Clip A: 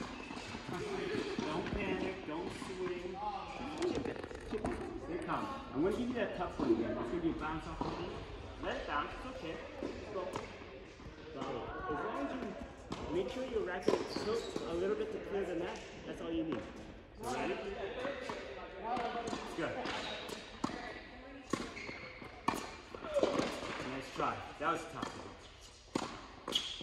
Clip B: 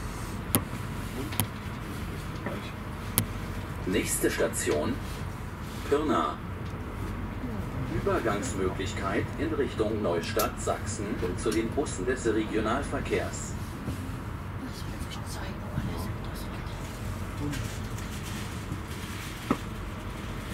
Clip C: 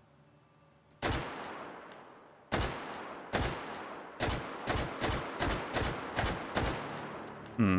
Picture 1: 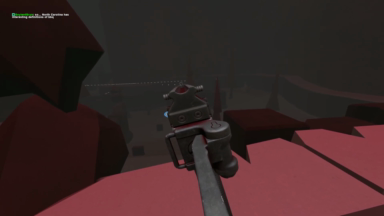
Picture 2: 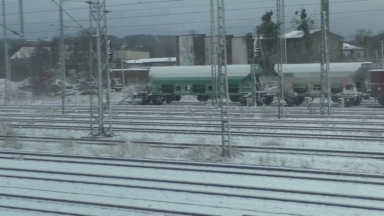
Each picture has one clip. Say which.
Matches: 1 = C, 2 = B